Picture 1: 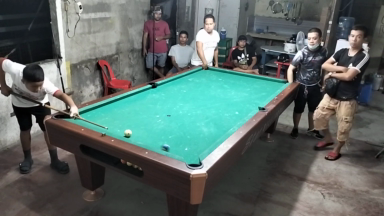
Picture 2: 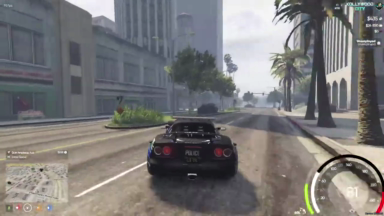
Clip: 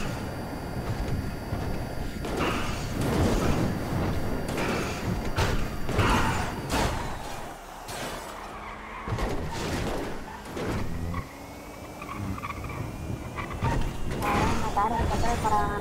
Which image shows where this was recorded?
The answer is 2